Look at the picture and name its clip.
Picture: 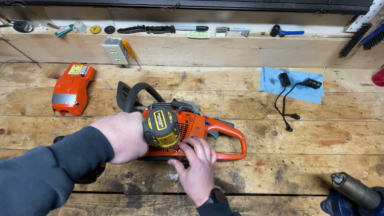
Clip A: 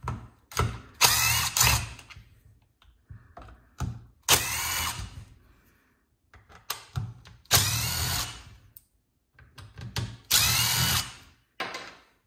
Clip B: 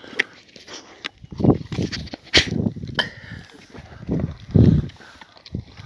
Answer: A